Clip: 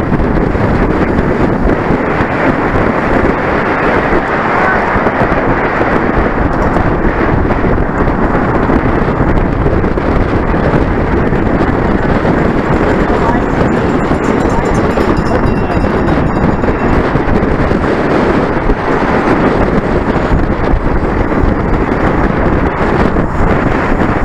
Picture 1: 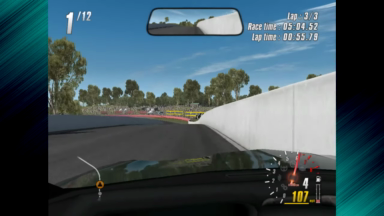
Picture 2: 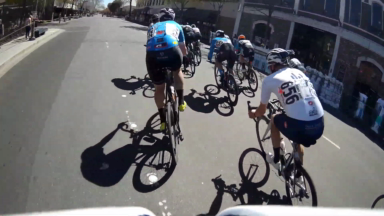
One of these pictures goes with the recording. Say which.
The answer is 2